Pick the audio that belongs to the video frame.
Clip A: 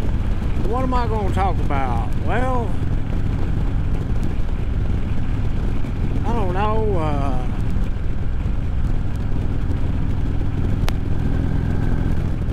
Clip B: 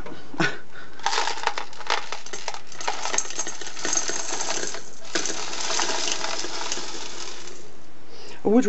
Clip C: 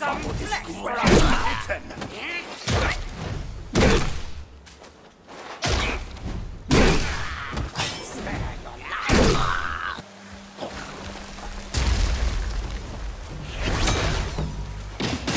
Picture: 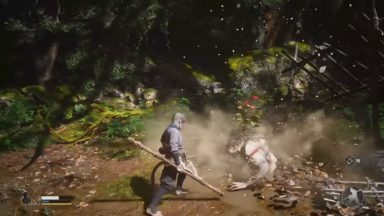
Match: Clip C